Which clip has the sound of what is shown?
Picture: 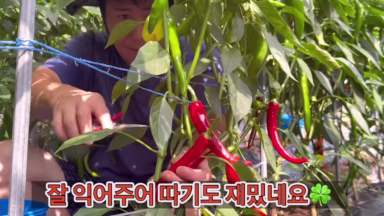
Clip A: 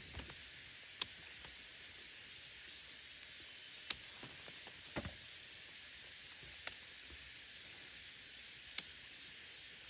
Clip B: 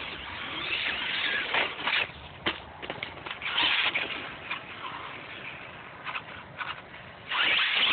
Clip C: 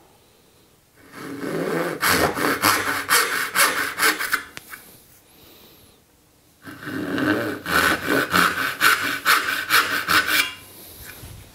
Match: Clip A